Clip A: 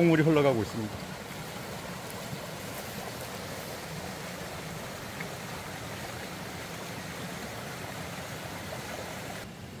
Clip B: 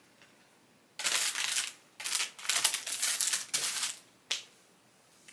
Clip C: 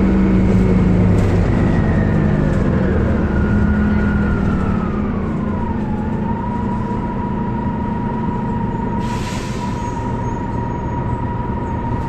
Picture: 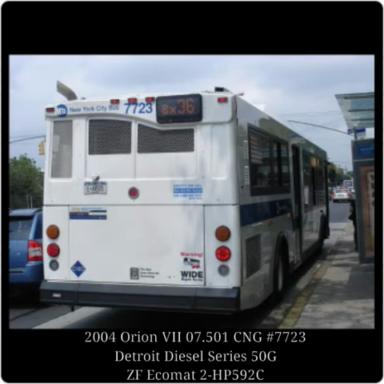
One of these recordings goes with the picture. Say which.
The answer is C